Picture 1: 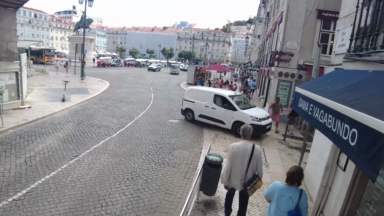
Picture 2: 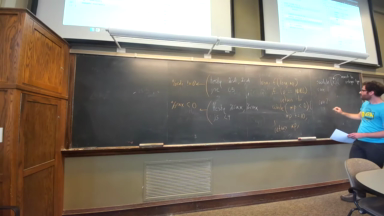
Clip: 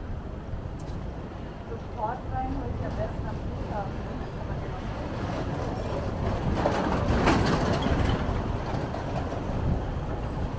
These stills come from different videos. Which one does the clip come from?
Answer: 1